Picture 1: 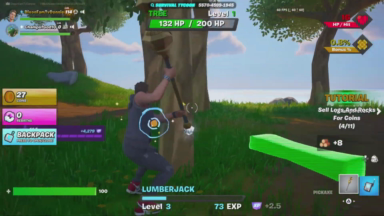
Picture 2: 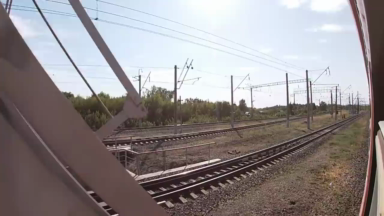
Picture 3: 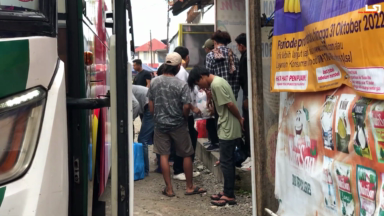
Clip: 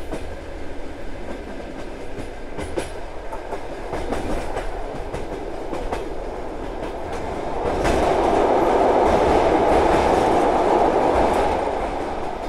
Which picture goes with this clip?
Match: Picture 2